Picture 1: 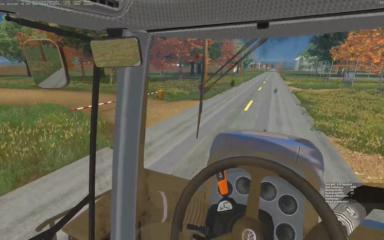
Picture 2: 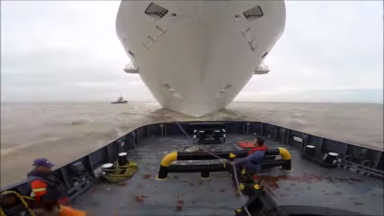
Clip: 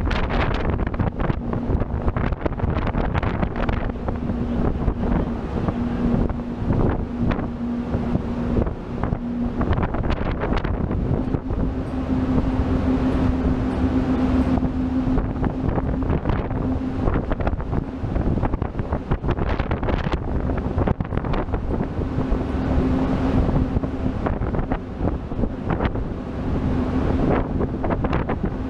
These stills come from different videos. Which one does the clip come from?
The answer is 2